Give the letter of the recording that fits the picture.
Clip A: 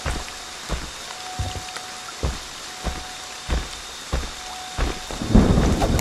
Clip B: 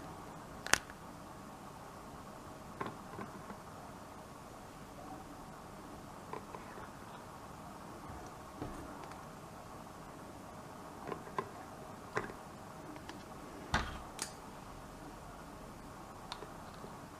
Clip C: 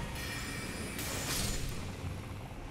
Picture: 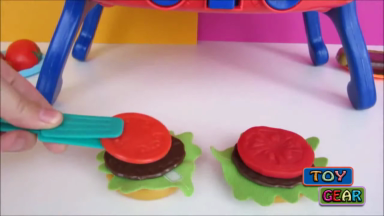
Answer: B